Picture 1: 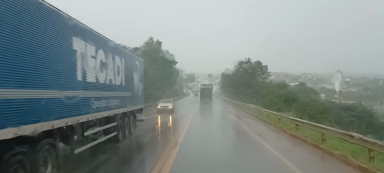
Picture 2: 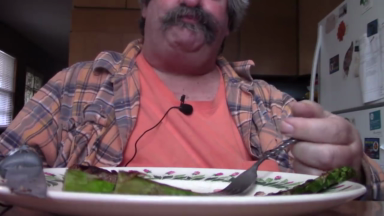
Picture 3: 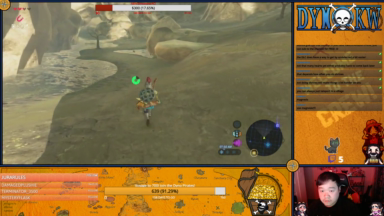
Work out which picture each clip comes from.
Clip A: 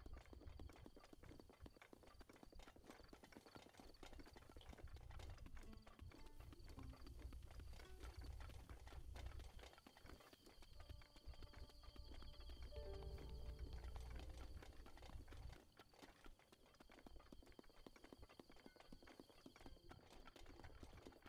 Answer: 3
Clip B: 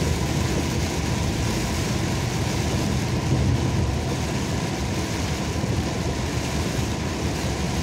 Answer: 1